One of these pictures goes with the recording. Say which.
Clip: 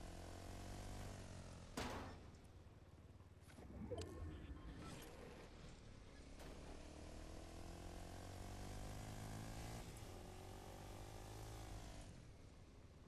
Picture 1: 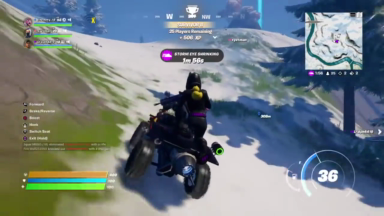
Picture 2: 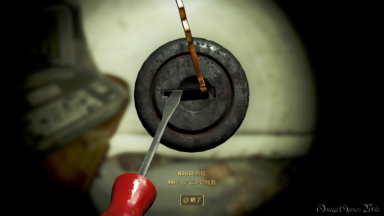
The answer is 1